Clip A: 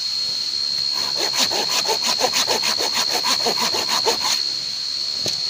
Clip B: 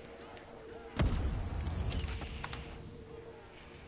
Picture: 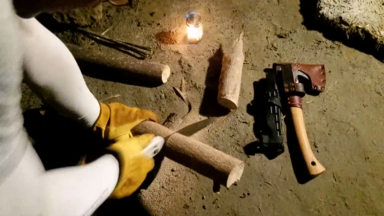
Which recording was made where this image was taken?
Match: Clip A